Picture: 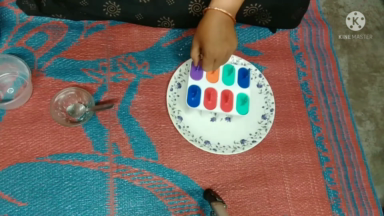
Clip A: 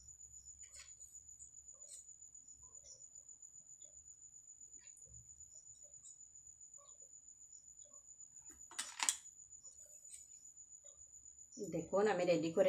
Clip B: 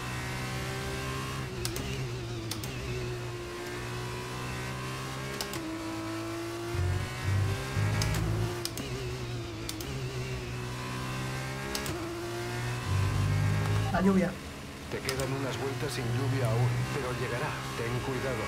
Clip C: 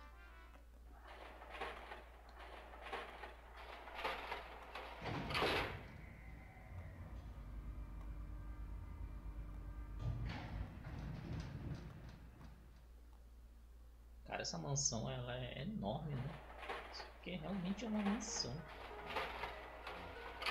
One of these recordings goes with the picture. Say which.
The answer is A